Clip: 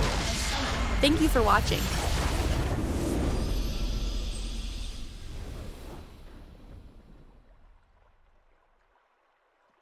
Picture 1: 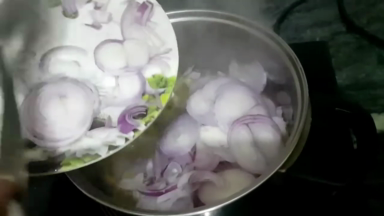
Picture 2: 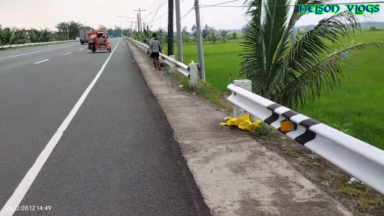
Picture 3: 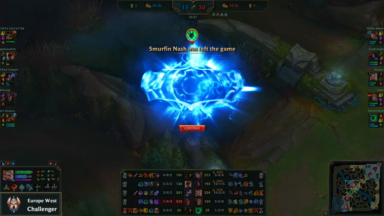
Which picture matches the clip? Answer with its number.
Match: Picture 3